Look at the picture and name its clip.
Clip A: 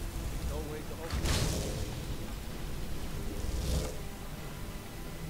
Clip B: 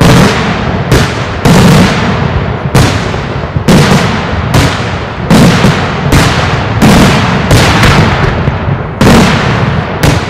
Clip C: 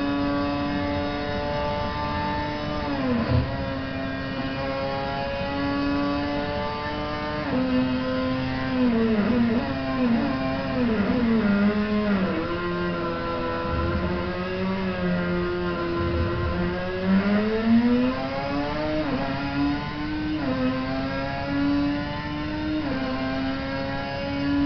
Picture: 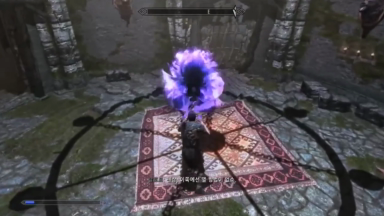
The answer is A